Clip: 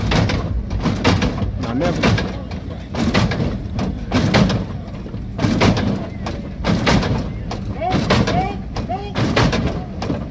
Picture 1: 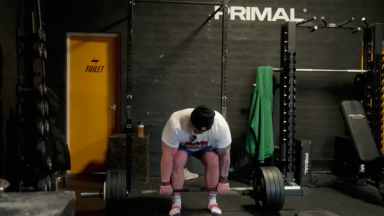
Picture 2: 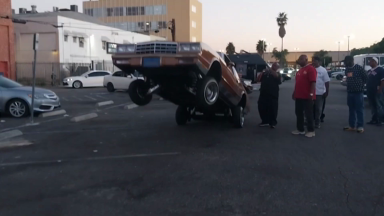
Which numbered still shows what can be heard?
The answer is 2